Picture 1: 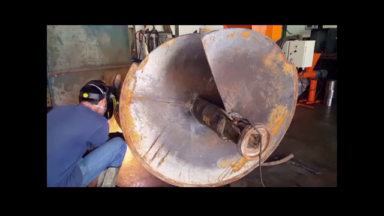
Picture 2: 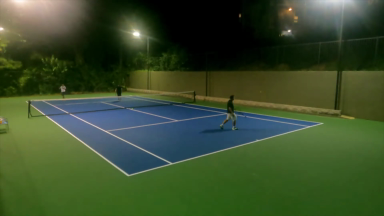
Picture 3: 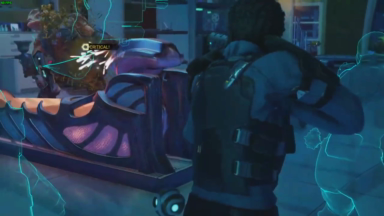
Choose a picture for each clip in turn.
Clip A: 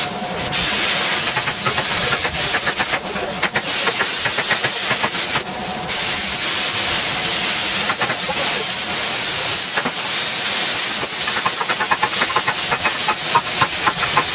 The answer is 1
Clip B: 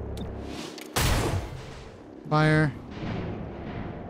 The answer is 3